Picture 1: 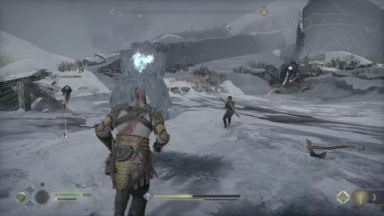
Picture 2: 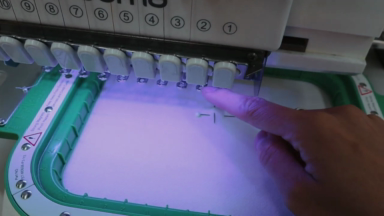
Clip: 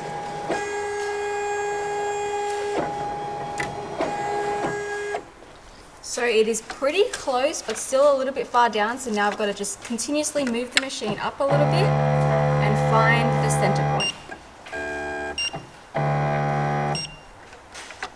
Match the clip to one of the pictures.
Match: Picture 2